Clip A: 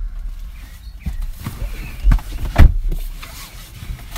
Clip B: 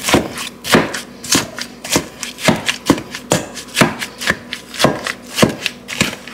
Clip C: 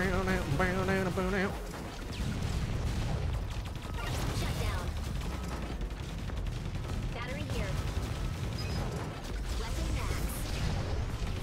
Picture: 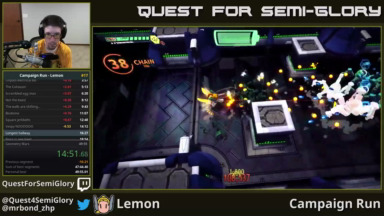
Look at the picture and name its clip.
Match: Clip C